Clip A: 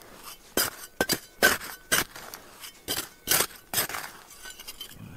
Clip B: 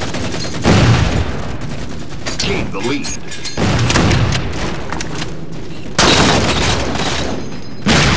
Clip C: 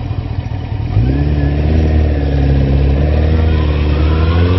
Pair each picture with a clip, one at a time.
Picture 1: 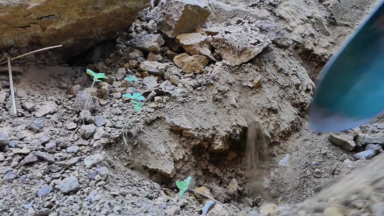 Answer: A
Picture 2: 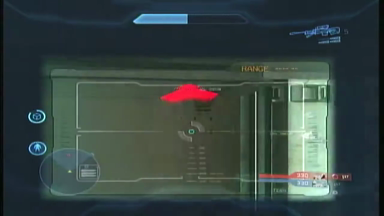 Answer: B